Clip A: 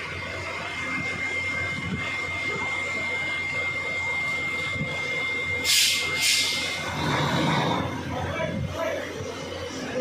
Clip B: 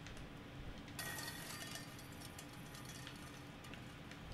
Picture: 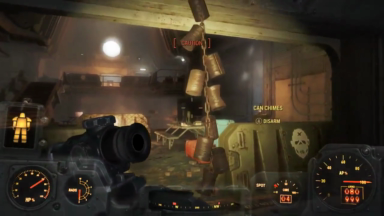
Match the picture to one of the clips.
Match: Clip B